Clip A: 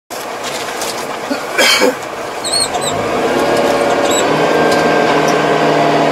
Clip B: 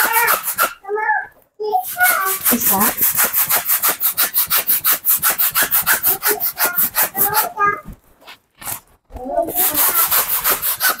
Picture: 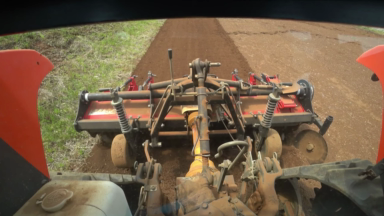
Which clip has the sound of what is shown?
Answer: A